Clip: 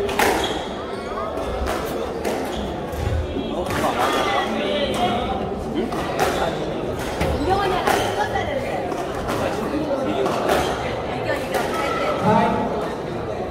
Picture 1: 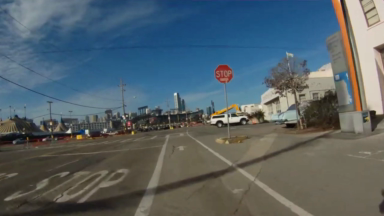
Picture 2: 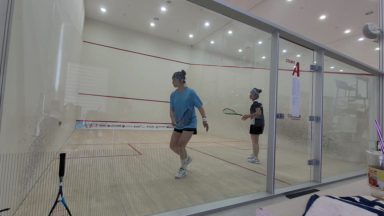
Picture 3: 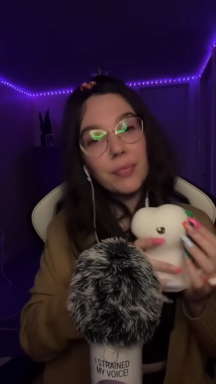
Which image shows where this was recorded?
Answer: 2